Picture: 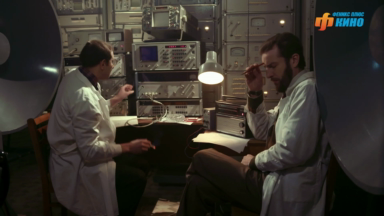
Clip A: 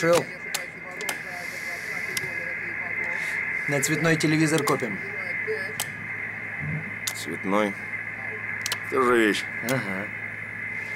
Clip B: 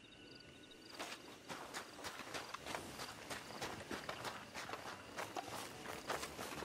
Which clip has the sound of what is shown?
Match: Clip A